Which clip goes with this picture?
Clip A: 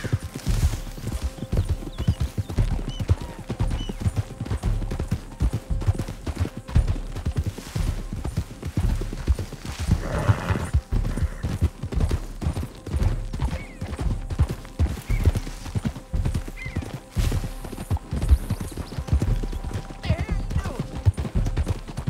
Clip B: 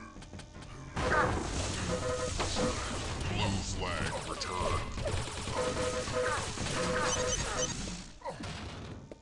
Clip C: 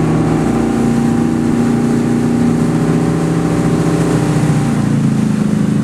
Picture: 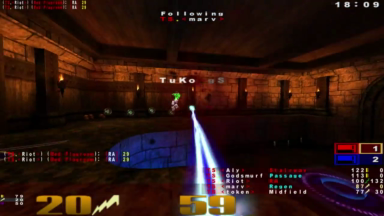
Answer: B